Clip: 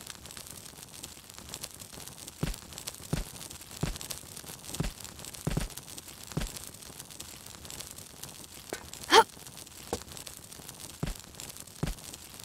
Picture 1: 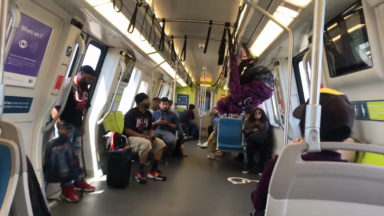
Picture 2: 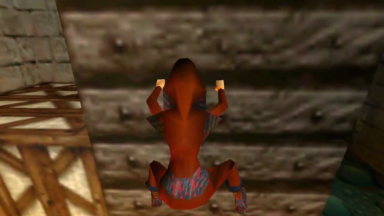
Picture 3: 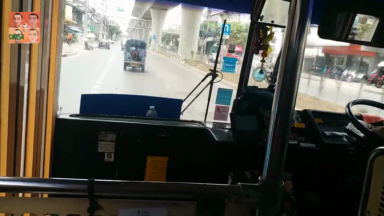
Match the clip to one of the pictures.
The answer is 2